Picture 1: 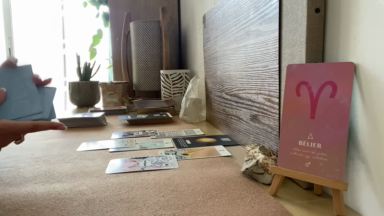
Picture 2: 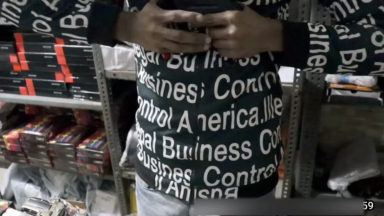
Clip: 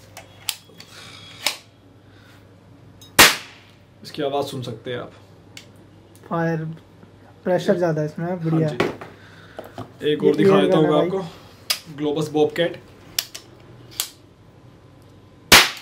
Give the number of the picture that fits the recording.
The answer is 2